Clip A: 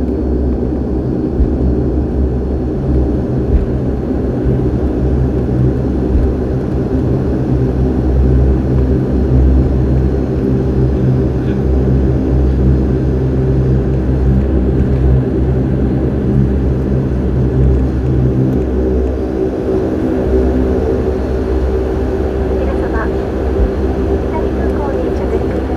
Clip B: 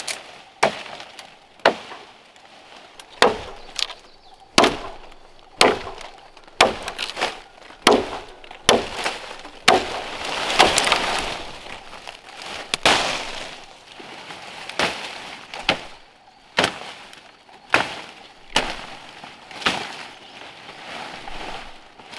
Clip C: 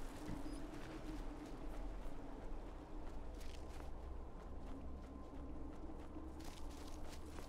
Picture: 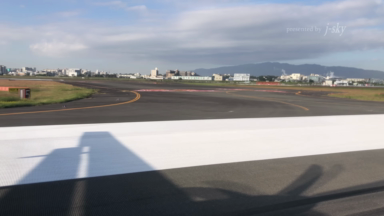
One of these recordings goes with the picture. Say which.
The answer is A